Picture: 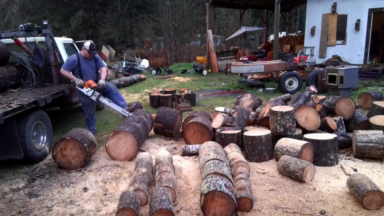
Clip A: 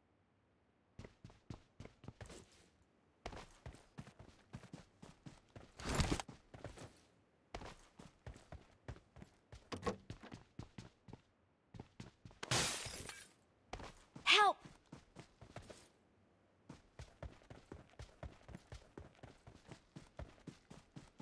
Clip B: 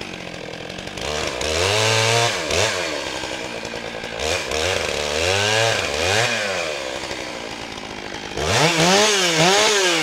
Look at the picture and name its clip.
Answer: B